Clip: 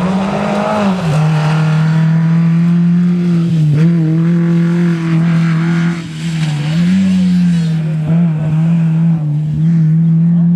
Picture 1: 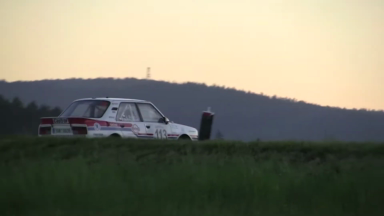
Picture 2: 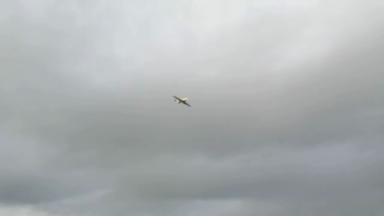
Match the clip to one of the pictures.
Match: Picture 1